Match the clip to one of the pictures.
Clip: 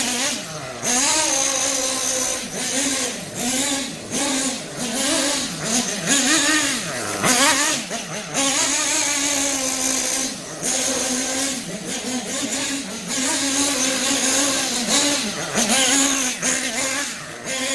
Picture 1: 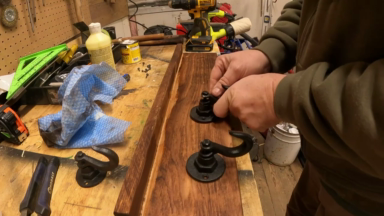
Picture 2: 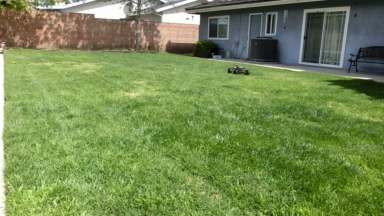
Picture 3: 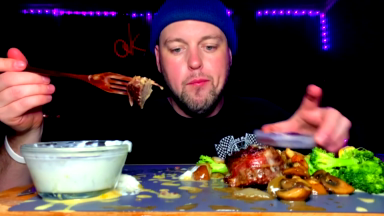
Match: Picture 2